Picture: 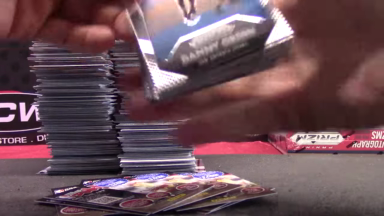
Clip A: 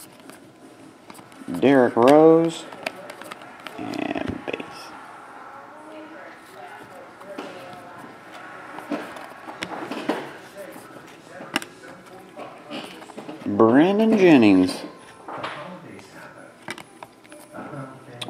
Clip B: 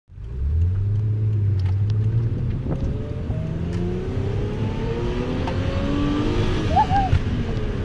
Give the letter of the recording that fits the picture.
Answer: A